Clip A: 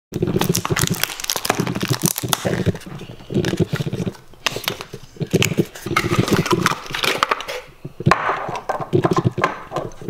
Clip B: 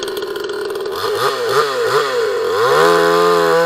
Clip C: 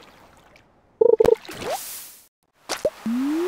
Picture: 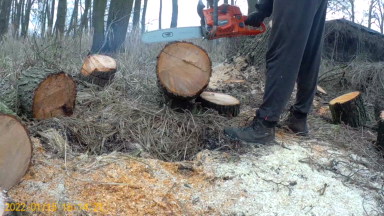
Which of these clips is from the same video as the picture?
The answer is B